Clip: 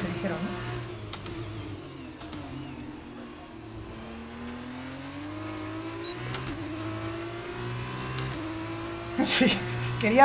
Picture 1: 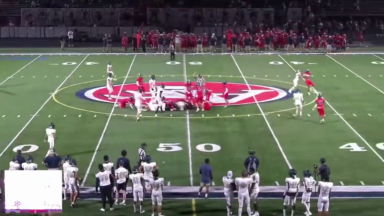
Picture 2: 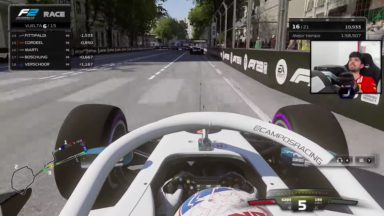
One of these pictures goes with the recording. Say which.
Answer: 2